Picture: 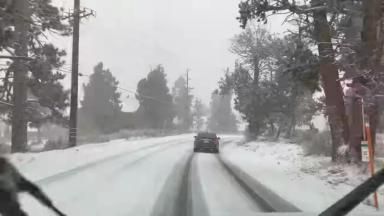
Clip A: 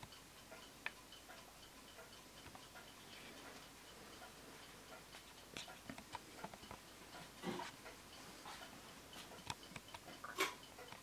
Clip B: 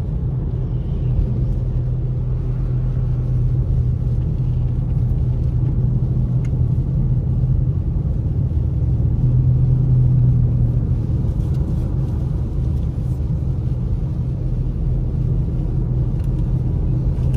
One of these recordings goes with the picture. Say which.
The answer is B